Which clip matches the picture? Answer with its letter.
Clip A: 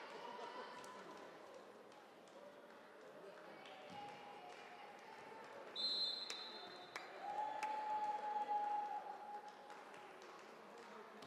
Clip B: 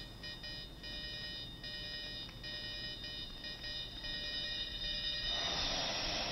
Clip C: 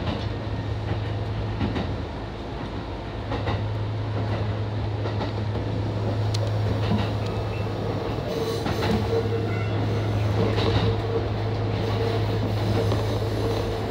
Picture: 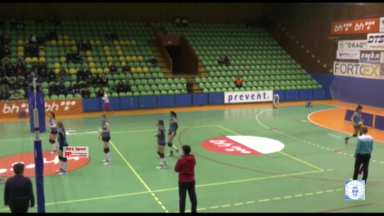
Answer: A